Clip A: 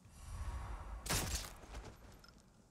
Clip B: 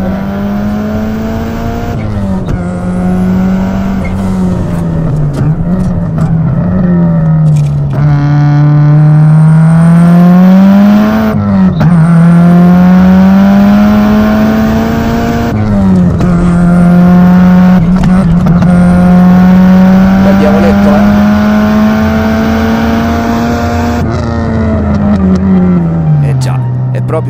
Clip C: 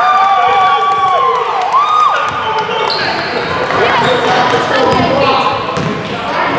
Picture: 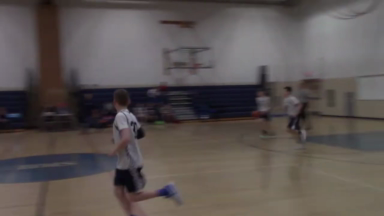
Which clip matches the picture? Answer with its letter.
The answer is C